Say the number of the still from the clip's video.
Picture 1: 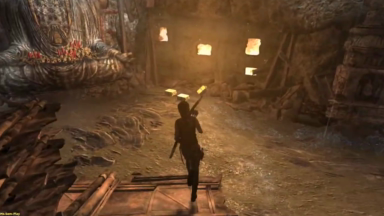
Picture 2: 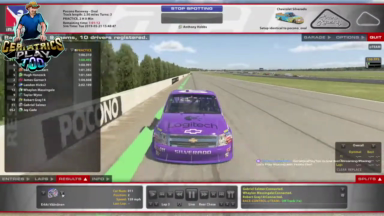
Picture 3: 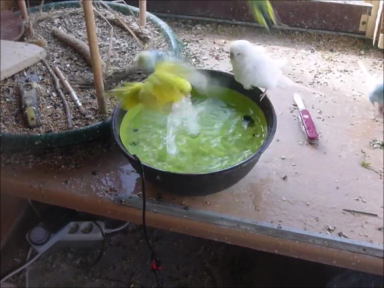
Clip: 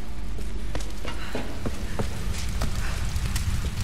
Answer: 1